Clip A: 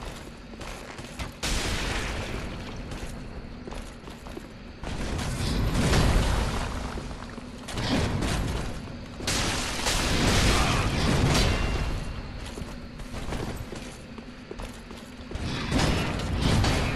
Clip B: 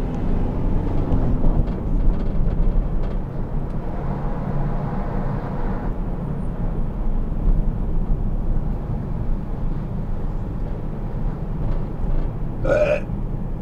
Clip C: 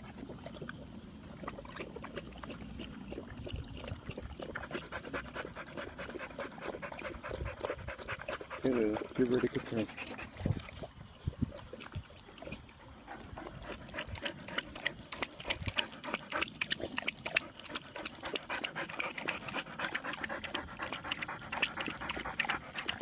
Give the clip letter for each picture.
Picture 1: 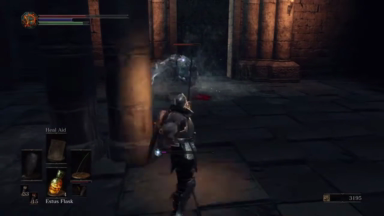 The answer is A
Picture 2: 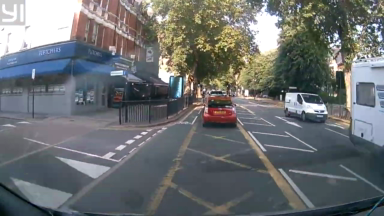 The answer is B